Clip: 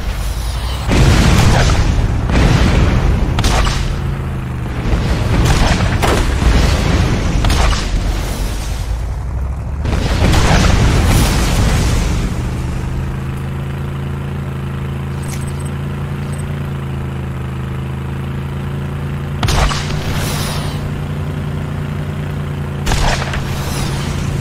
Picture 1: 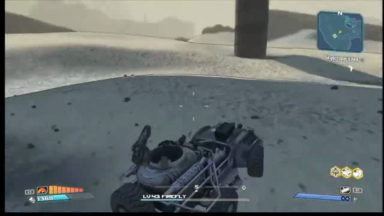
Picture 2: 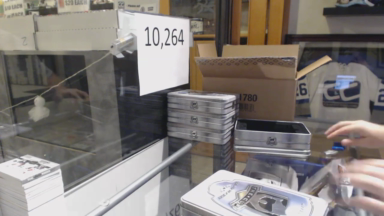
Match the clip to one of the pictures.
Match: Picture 1